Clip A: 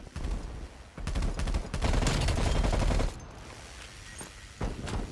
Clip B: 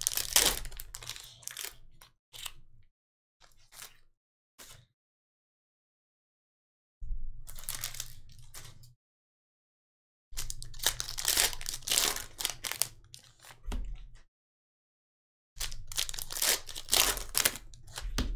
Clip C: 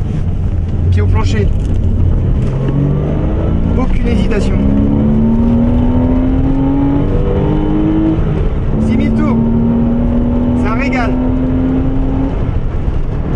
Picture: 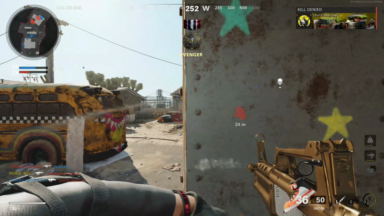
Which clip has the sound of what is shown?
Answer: A